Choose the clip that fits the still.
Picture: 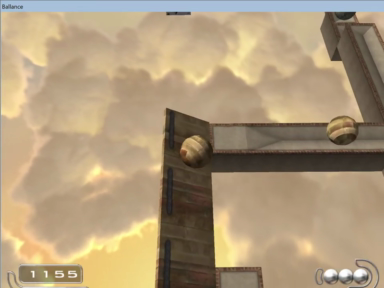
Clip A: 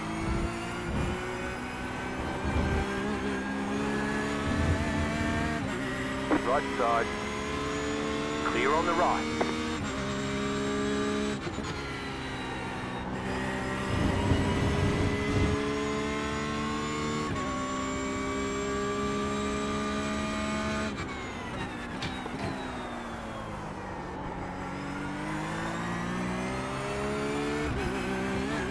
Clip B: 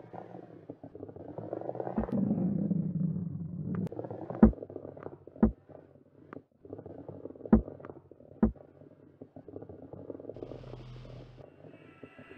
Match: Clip B